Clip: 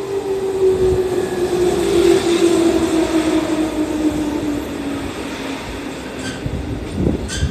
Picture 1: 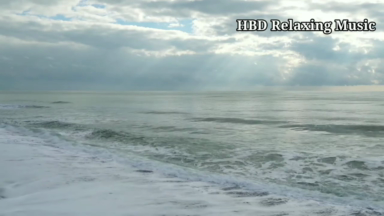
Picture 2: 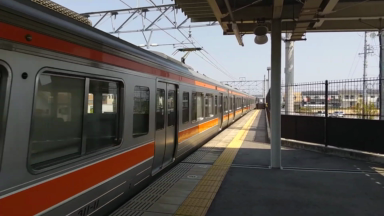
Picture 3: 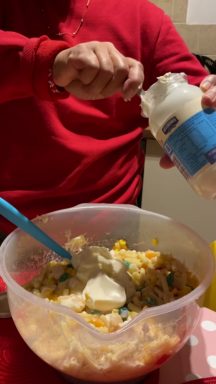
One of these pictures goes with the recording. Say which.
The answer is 2